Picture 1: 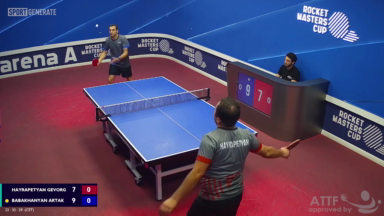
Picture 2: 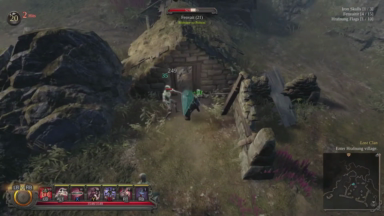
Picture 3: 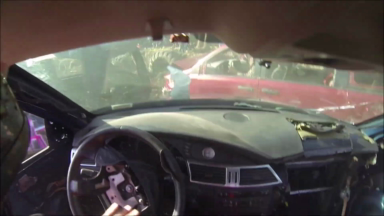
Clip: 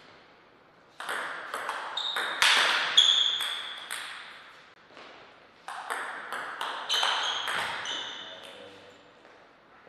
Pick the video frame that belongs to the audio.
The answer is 1